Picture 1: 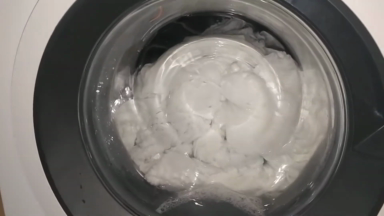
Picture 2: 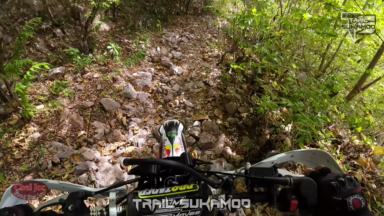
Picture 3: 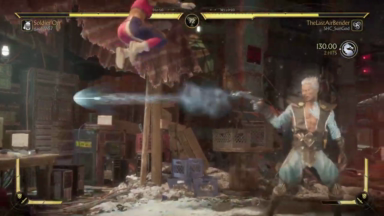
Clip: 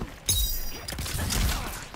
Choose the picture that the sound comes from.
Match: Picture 3